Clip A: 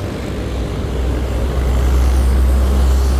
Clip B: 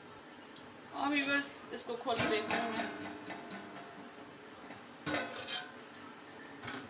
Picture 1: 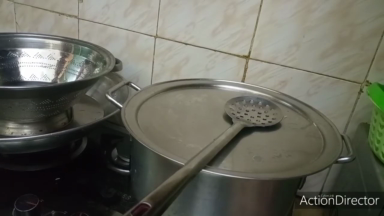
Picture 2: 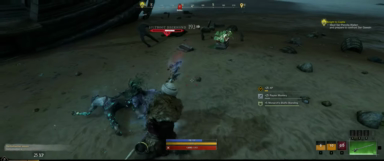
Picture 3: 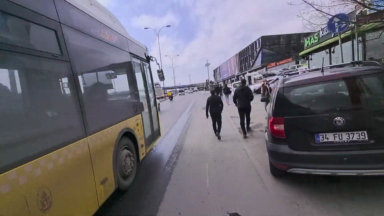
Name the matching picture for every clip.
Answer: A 3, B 1